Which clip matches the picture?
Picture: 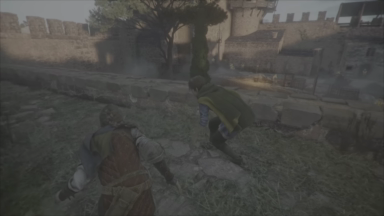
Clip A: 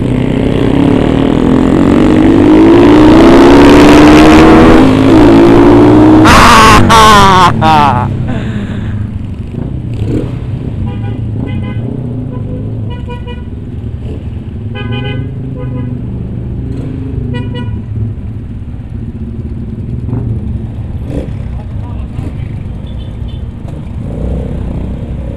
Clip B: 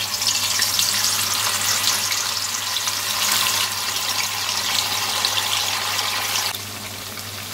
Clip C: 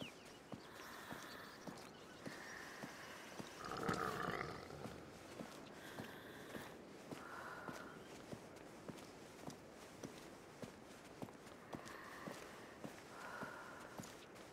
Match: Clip C